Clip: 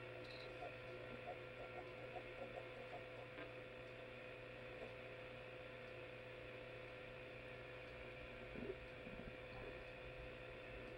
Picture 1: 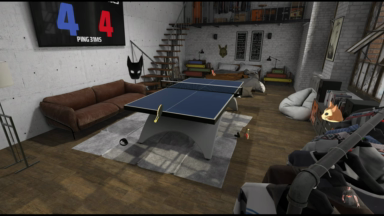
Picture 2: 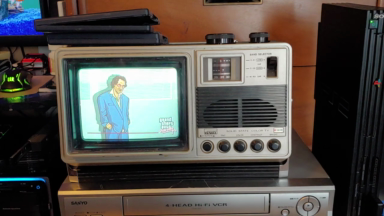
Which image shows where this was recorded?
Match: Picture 2